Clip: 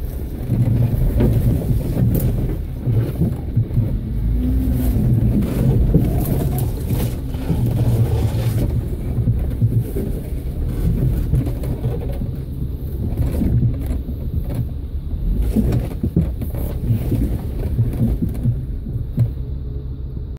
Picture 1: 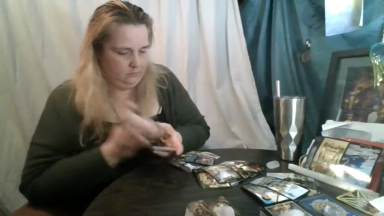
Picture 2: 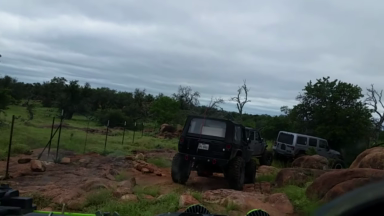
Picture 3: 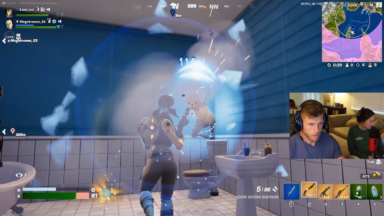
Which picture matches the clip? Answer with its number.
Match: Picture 2